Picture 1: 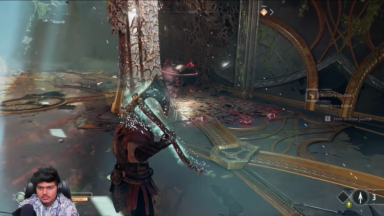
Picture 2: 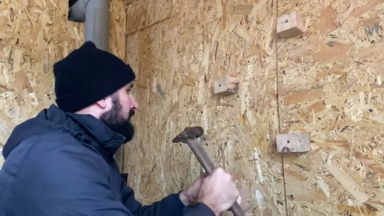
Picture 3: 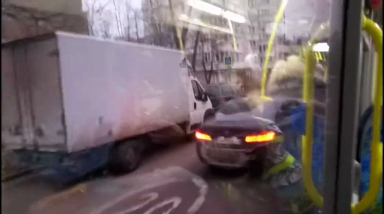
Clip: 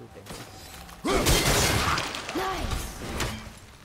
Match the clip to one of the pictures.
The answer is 1